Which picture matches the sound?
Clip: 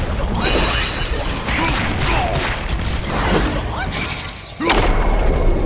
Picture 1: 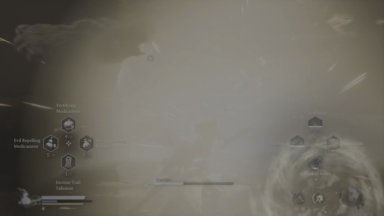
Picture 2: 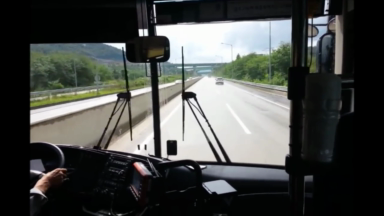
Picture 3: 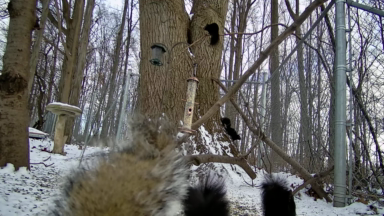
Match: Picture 1